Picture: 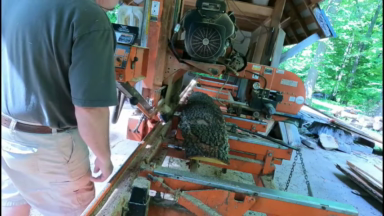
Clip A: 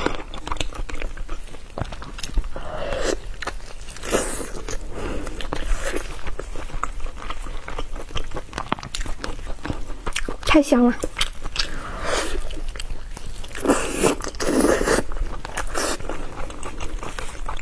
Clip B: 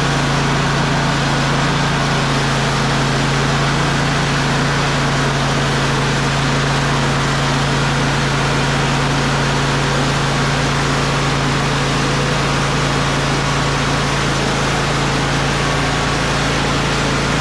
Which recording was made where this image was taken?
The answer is B